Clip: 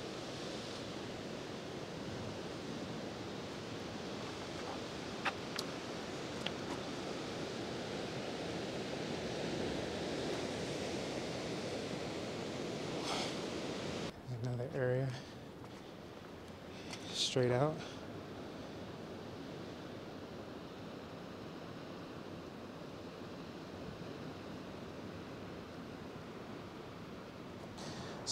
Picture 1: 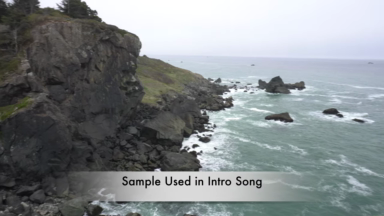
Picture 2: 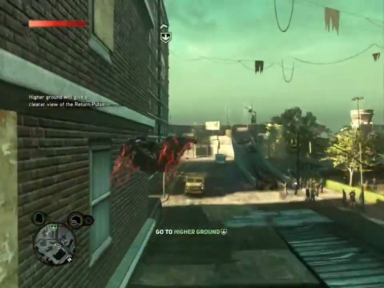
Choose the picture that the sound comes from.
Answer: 1